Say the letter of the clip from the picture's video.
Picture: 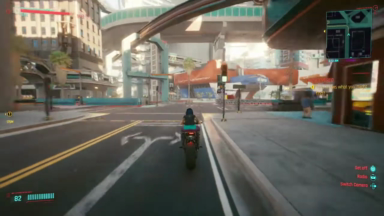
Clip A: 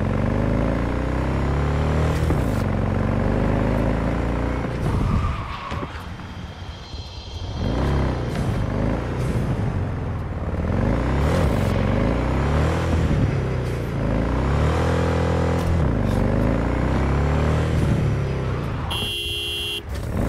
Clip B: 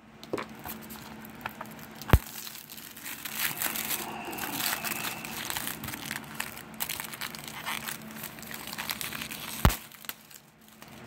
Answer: A